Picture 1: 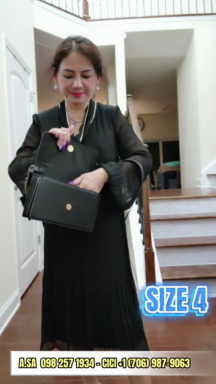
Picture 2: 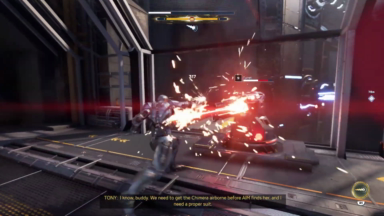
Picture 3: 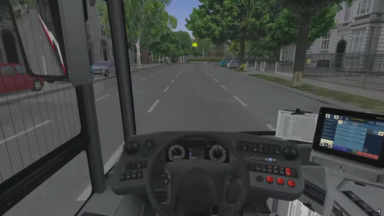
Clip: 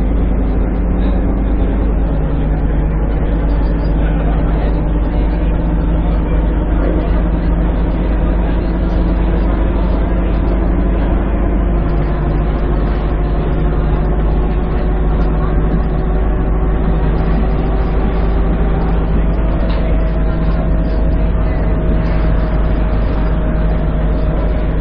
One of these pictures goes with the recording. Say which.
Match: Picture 3